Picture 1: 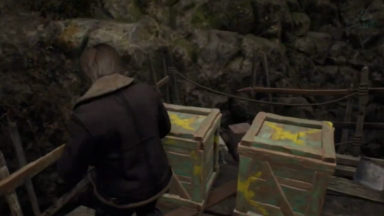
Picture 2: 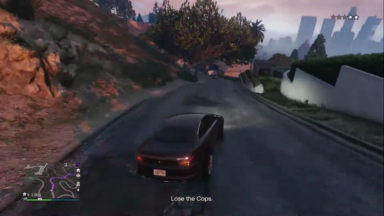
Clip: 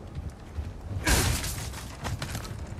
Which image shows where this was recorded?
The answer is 1